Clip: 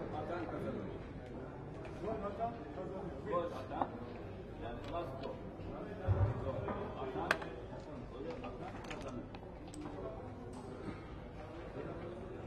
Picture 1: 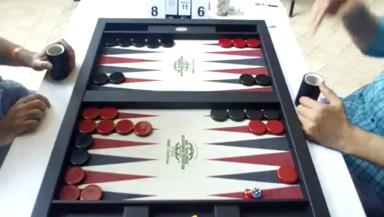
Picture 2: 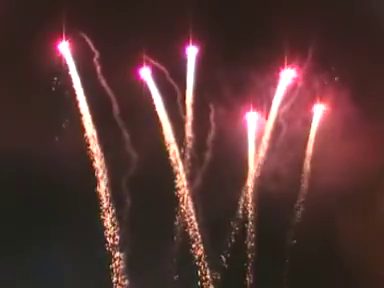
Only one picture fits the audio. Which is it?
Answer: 1